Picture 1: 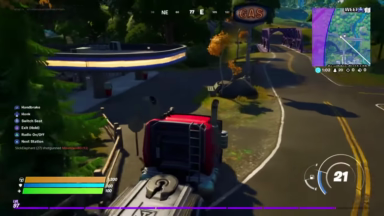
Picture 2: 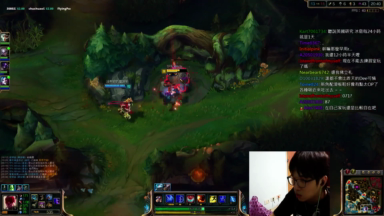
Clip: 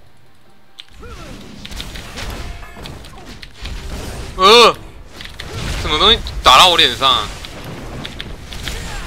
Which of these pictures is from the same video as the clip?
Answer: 2